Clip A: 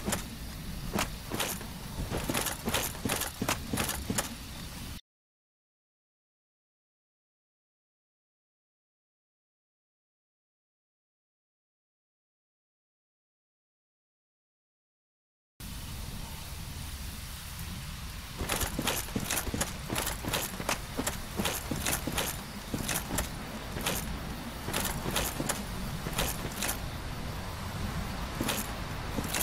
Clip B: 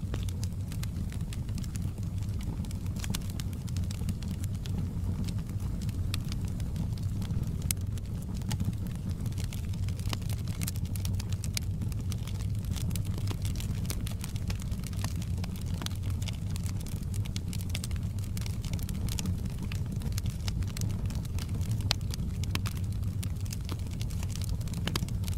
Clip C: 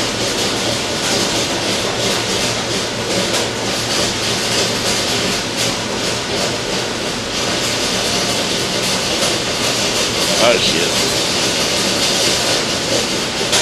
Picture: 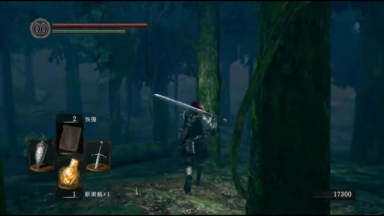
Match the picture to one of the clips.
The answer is A